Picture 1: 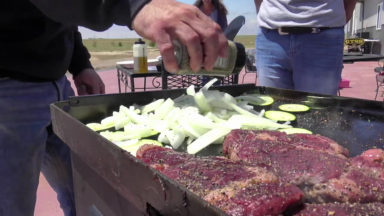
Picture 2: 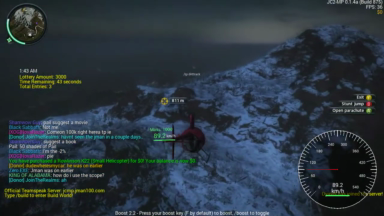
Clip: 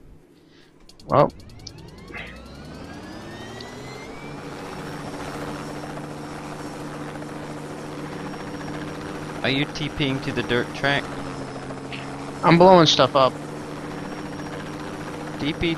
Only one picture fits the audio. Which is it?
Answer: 2